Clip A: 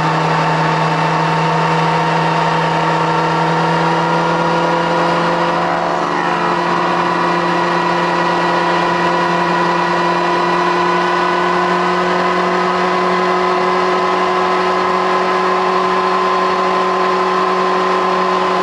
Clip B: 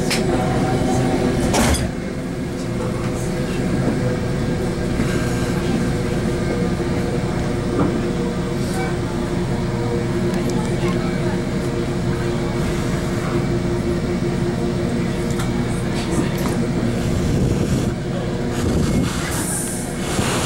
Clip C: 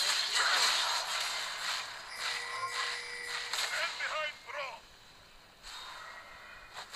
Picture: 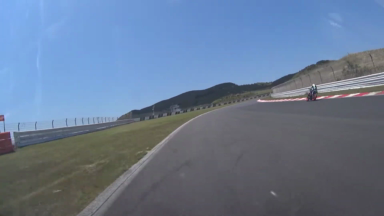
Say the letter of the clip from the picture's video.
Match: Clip A